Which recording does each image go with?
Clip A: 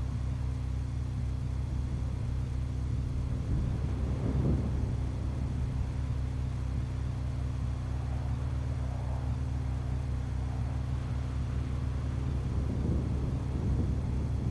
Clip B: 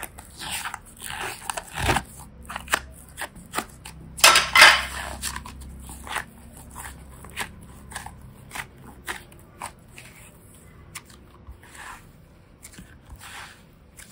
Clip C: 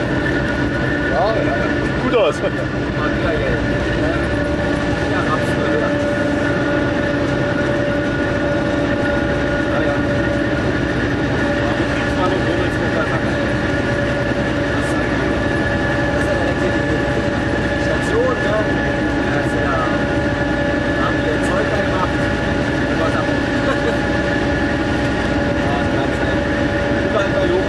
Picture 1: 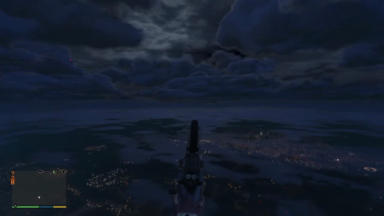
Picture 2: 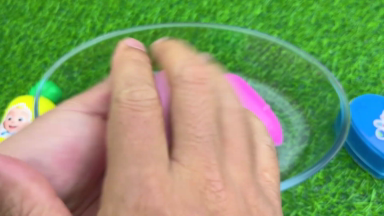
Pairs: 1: A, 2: B